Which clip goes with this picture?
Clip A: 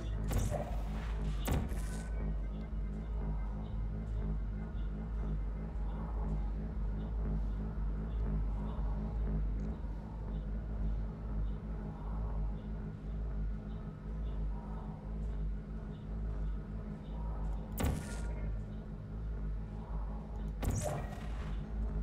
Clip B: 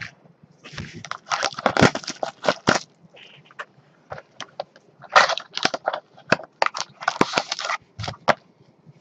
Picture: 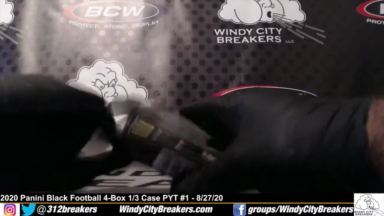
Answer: B